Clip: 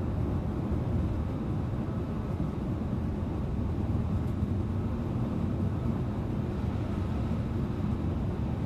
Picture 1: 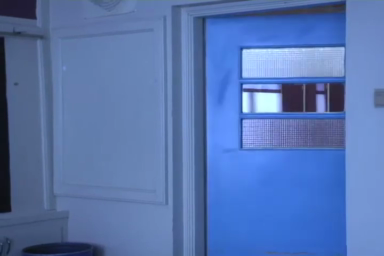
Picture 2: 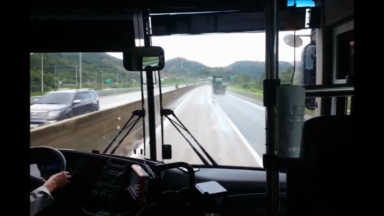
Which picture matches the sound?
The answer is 2